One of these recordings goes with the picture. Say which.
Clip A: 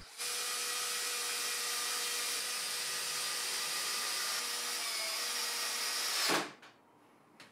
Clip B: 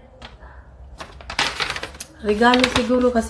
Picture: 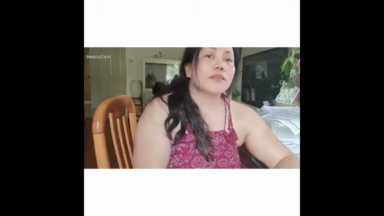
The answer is B